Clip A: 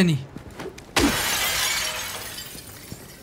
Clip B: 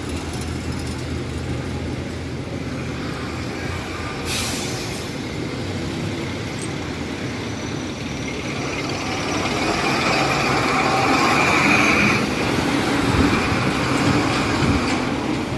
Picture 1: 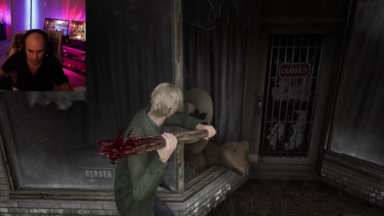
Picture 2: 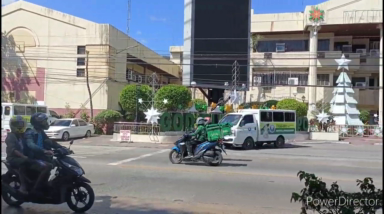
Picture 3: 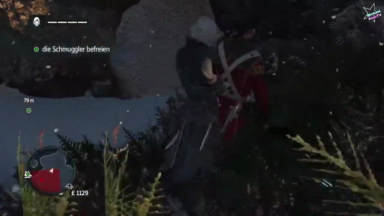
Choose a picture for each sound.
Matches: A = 1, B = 2